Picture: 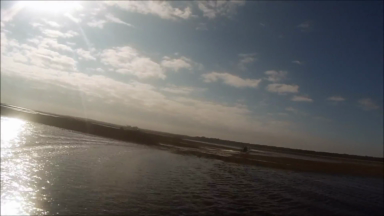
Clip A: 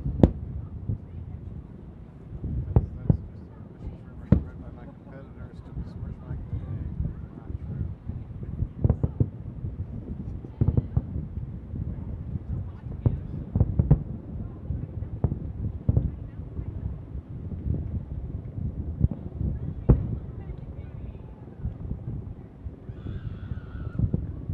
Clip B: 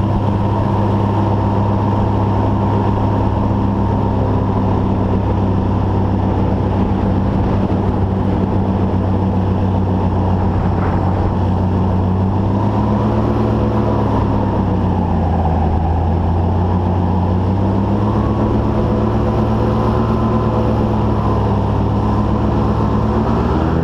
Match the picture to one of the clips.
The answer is B